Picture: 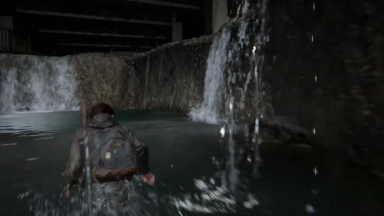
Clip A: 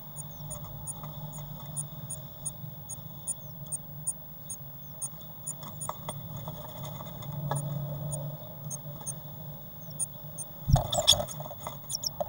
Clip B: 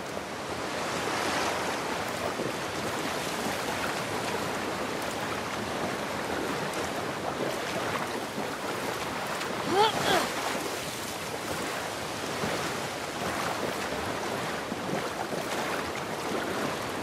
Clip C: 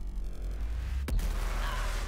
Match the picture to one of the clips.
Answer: B